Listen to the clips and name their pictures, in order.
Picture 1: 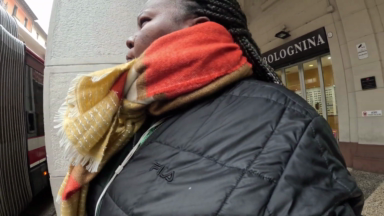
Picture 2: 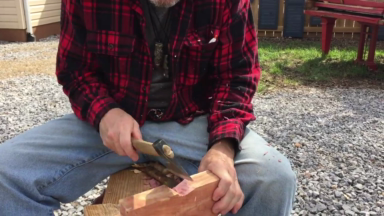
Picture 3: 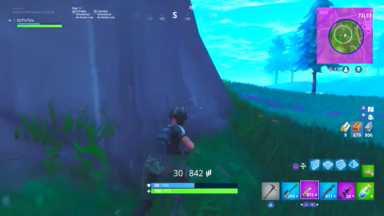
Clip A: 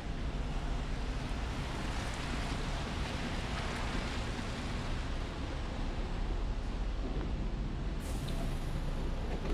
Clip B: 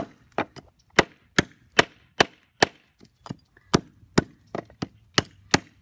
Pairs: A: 1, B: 2